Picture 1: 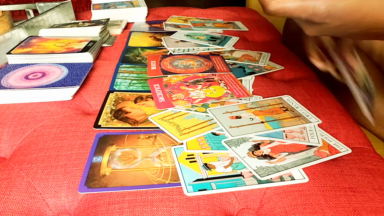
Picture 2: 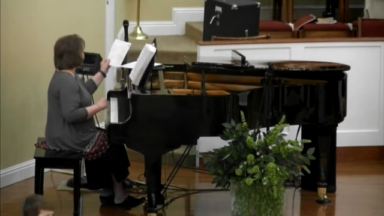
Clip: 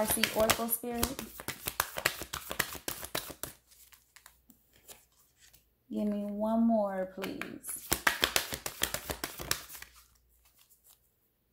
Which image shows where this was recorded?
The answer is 1